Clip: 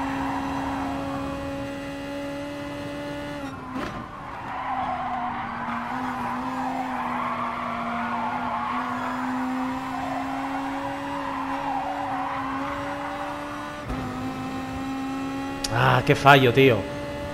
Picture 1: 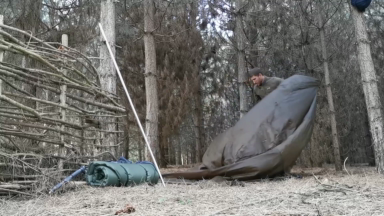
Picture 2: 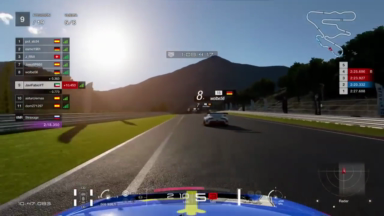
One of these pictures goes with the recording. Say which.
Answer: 2